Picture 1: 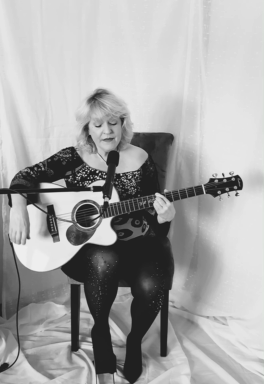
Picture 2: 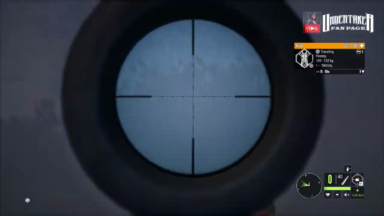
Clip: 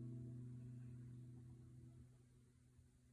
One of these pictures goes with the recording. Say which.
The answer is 1